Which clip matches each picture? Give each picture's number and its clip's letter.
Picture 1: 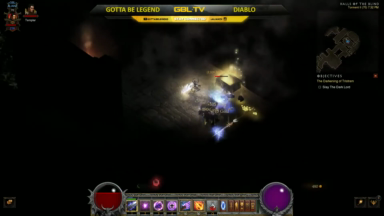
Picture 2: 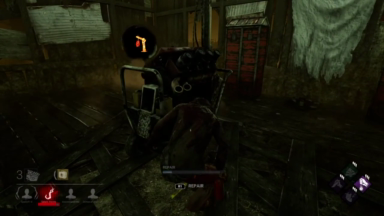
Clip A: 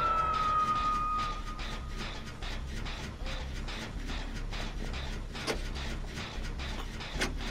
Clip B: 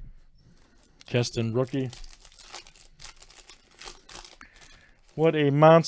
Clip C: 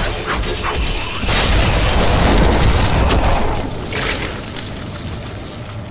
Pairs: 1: C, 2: A